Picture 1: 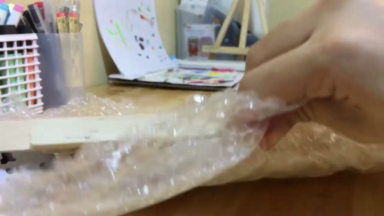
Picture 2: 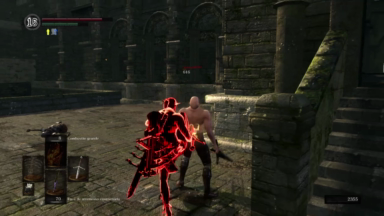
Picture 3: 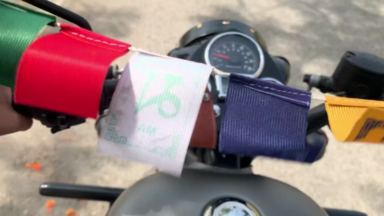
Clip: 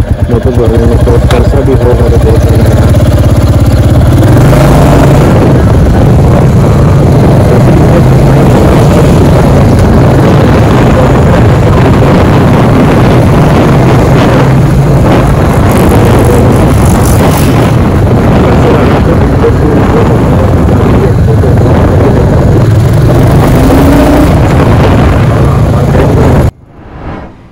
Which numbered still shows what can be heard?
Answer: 3